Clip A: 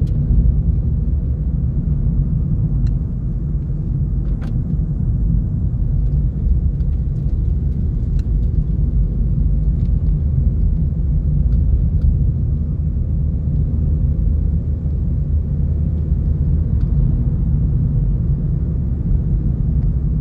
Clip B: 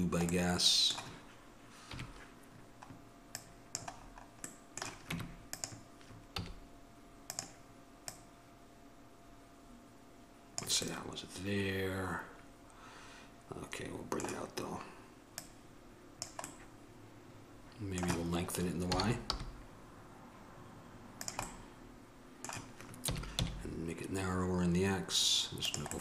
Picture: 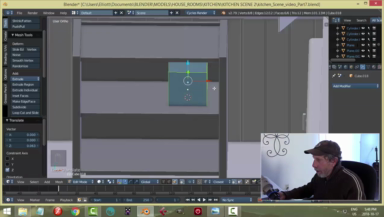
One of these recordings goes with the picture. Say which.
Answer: B